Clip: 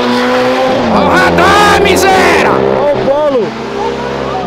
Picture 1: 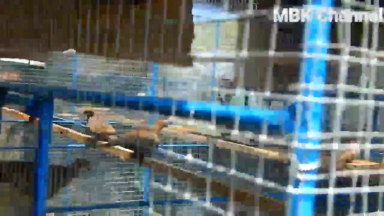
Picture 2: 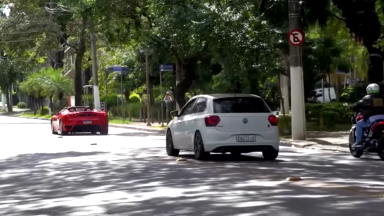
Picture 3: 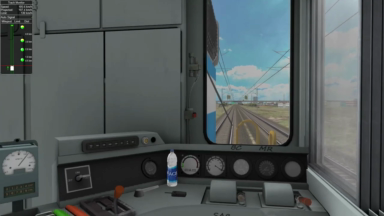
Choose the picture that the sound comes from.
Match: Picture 2